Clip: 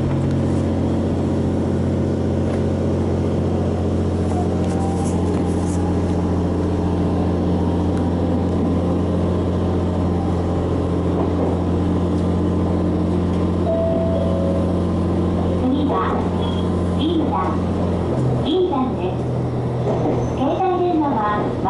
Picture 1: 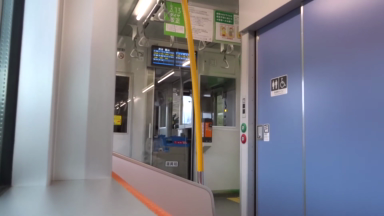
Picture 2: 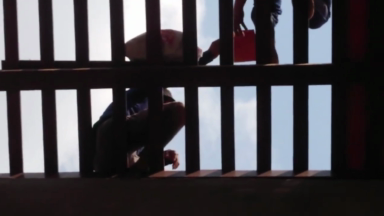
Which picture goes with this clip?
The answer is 1